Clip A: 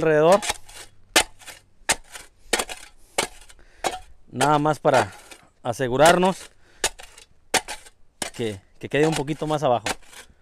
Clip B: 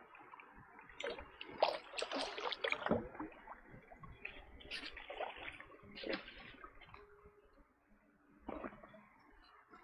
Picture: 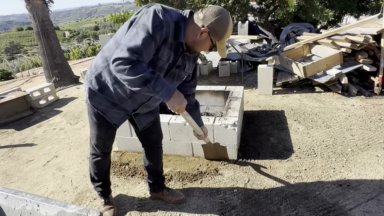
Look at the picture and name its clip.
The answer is A